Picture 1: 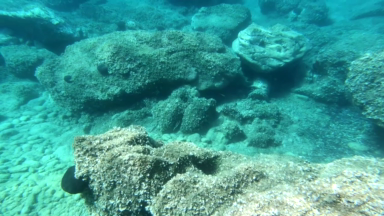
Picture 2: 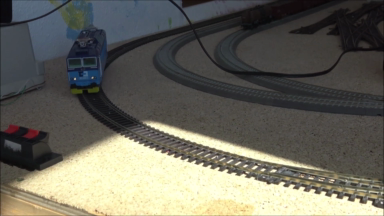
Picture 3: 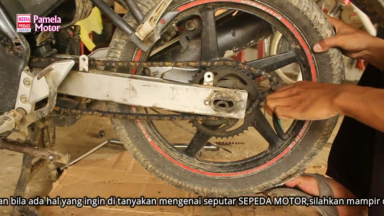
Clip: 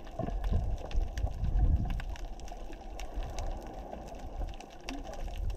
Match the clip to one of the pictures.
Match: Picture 1